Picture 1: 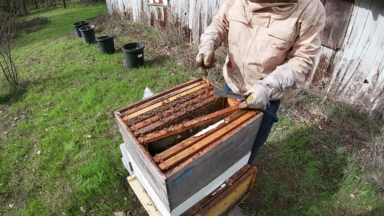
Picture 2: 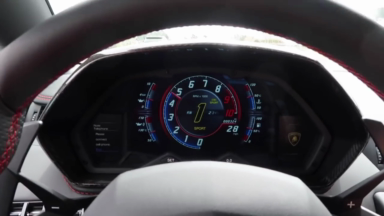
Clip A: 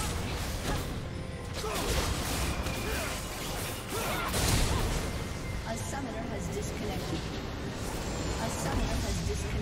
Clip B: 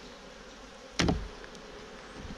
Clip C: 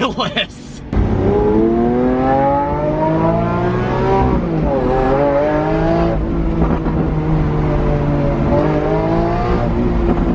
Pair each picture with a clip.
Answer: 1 B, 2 C